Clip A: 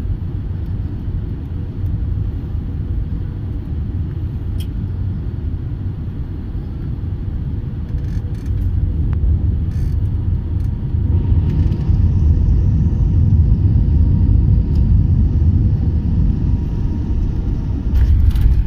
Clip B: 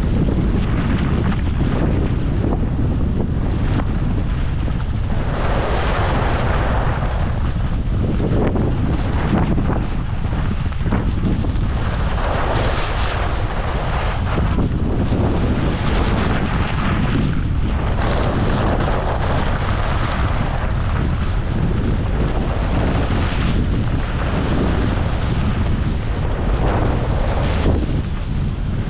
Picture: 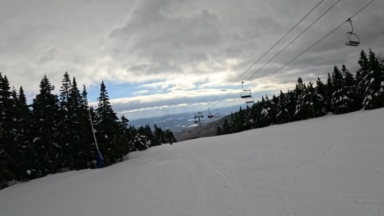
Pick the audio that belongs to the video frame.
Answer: B